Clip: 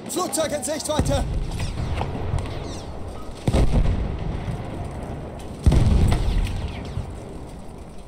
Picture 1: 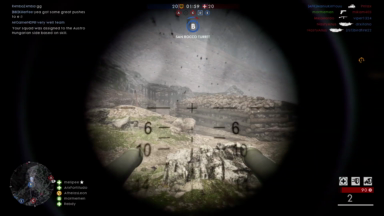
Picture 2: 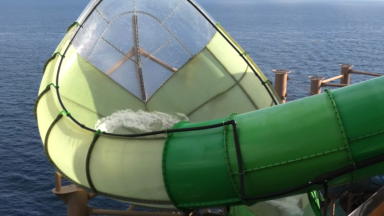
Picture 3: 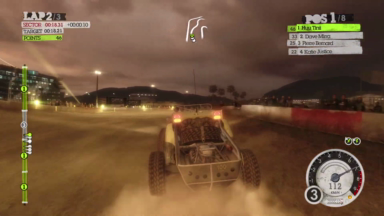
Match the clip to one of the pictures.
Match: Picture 1